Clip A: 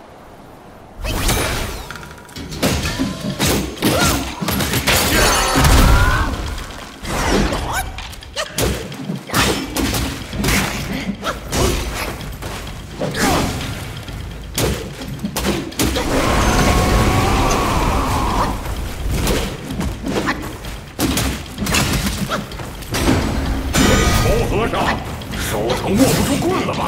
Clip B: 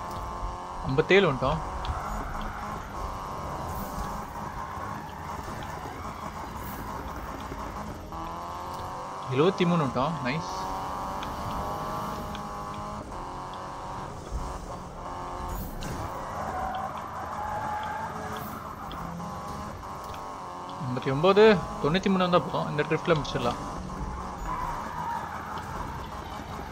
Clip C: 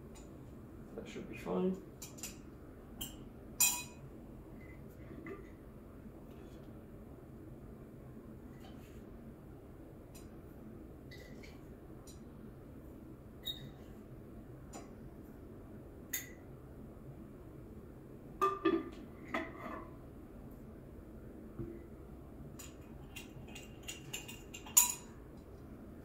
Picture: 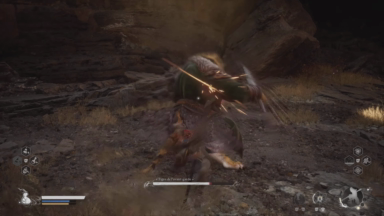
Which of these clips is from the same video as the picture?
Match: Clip A